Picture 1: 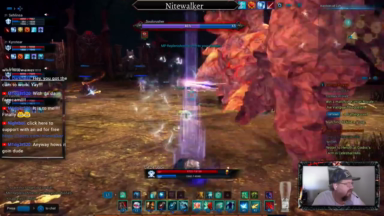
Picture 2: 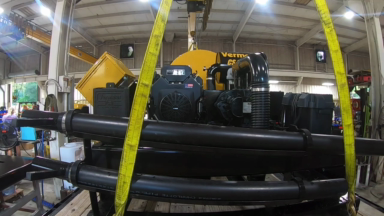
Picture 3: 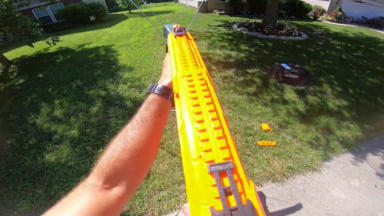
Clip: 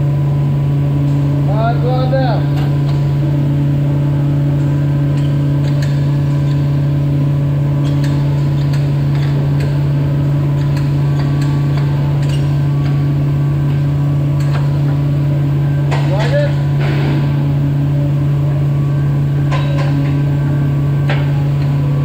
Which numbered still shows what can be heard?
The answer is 2